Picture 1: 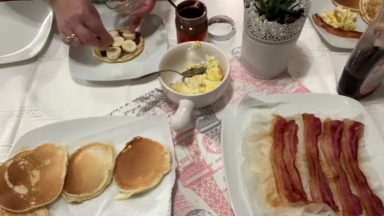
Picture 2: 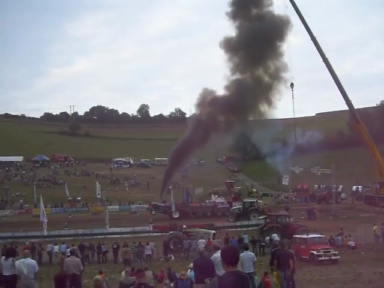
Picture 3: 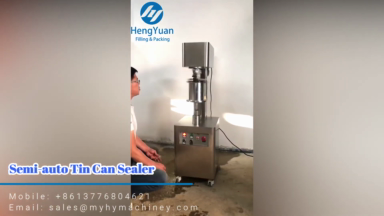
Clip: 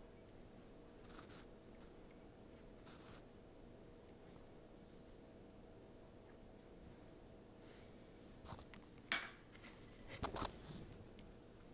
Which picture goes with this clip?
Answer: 1